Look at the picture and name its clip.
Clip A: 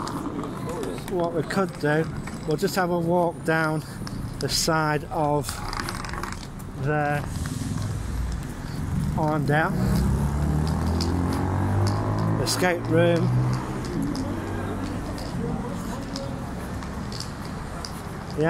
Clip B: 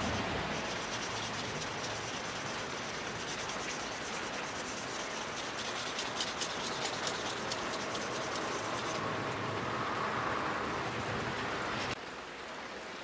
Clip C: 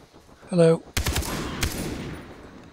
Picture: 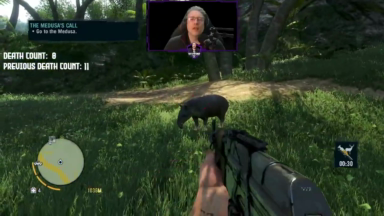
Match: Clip C